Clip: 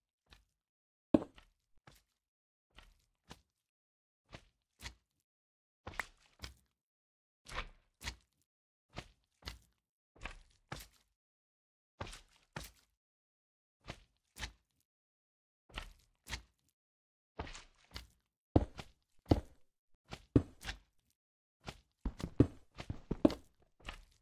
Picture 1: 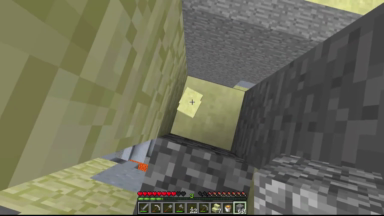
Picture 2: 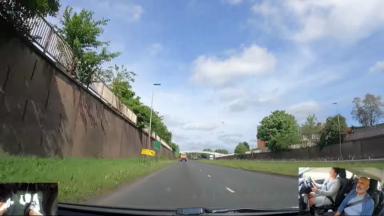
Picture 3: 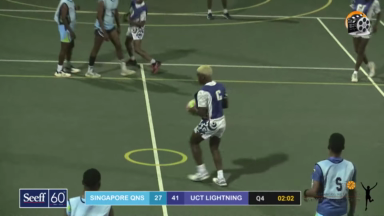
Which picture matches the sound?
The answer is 1